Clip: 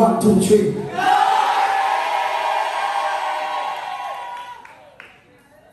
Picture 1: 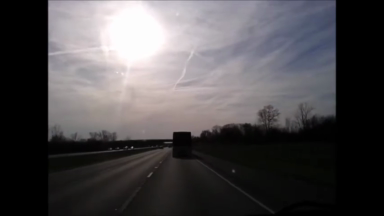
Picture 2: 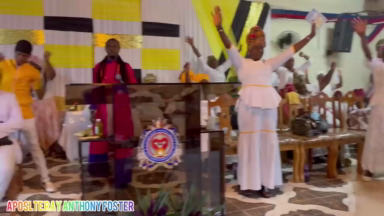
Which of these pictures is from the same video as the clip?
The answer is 2